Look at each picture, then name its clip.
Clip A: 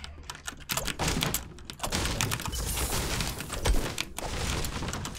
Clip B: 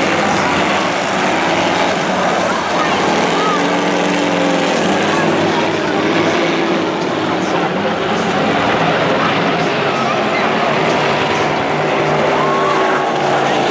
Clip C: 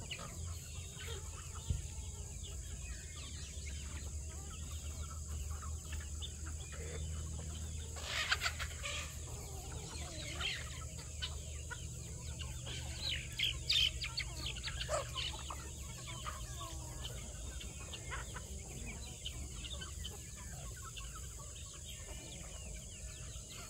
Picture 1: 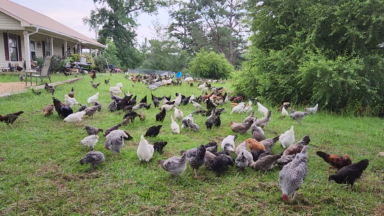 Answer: C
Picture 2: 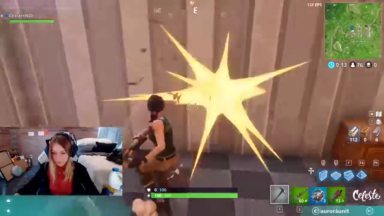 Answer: A